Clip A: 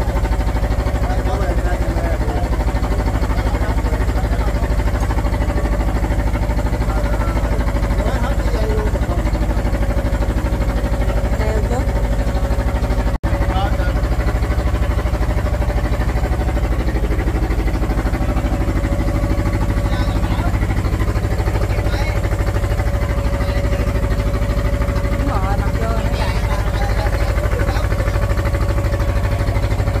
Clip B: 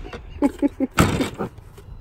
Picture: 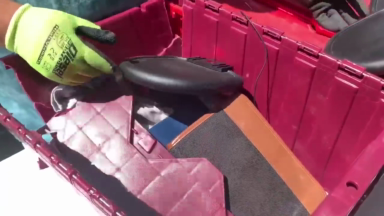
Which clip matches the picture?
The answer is B